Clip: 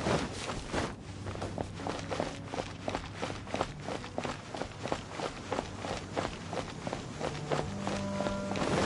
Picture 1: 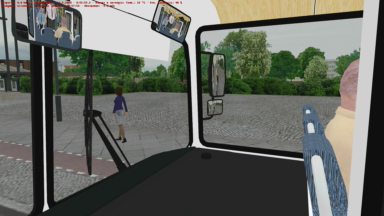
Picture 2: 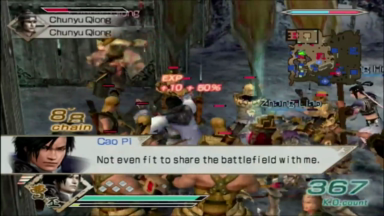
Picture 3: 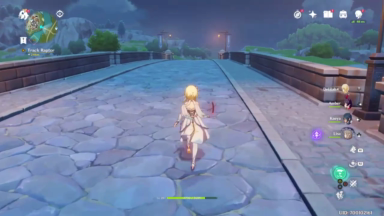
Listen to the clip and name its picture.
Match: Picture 3